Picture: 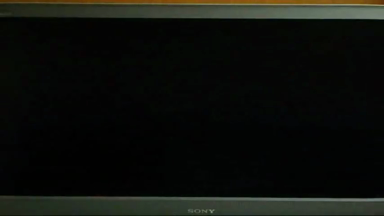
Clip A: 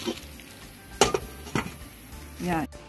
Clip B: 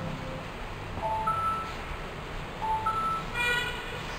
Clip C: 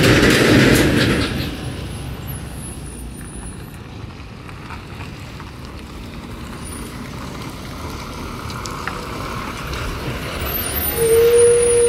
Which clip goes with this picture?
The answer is B